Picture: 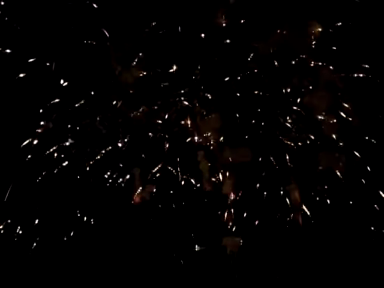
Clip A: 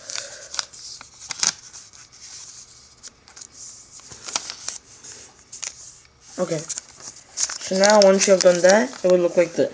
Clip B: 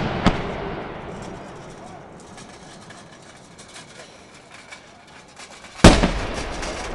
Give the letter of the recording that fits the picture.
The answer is B